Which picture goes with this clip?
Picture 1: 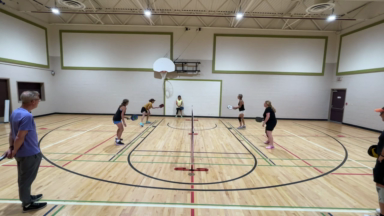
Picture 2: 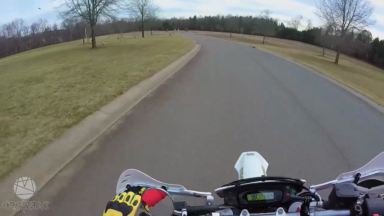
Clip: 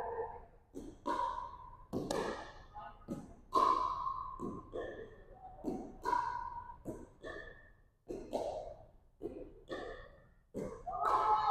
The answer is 1